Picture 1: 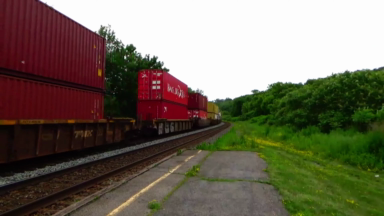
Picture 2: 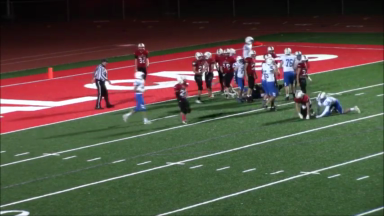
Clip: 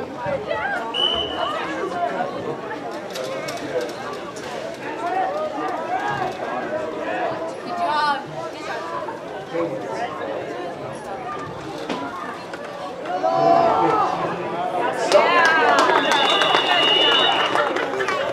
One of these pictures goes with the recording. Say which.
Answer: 2